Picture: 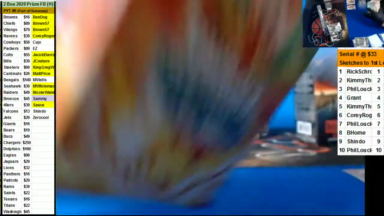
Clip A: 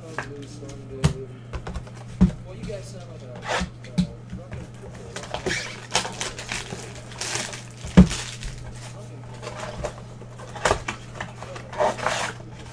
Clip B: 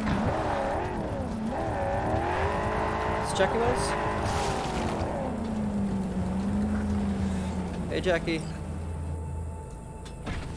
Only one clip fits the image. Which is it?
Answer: A